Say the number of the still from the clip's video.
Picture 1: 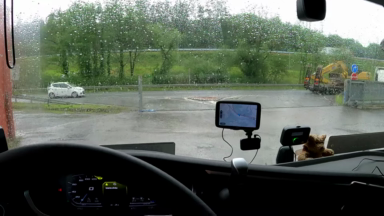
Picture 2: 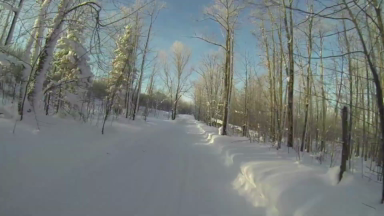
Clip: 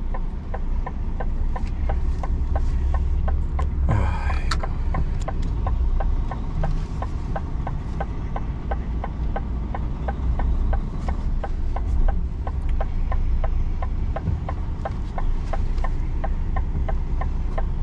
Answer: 1